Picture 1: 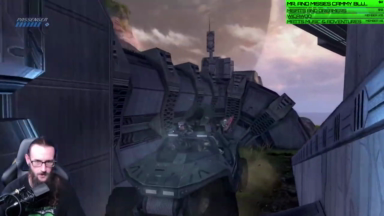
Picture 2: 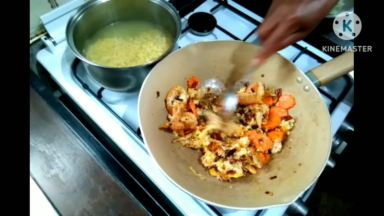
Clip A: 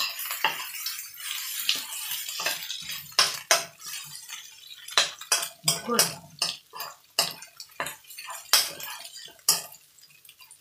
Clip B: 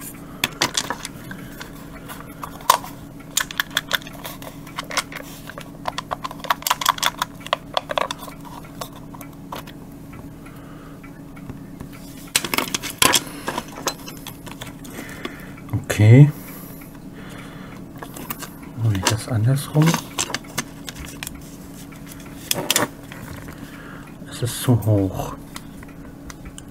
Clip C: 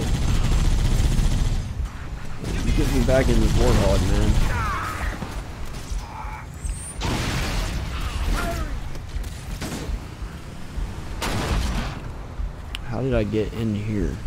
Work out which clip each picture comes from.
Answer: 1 C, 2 A